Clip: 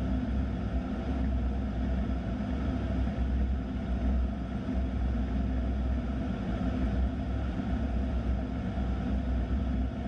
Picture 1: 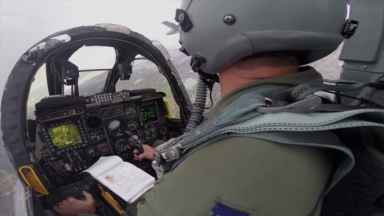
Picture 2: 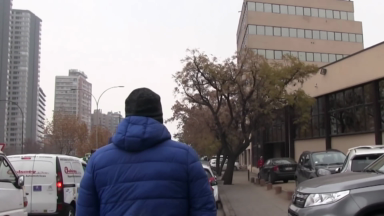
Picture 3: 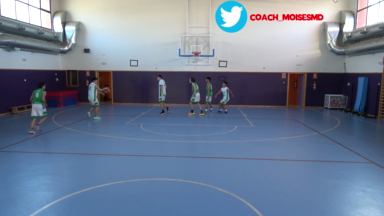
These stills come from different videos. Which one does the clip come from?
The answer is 1